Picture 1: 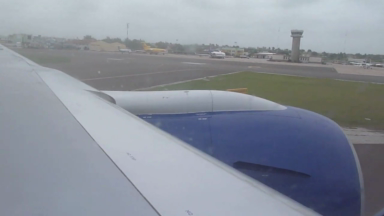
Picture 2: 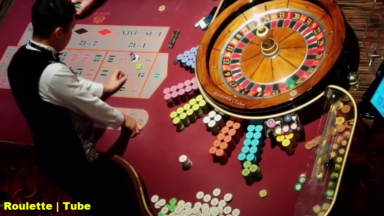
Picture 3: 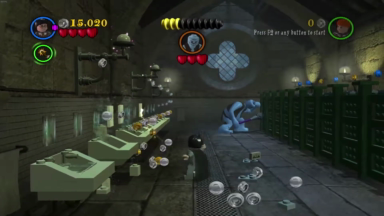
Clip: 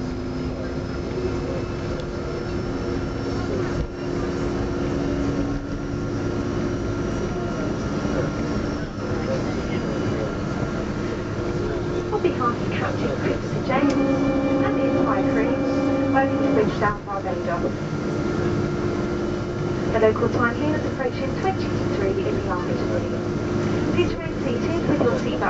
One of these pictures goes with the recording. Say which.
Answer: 1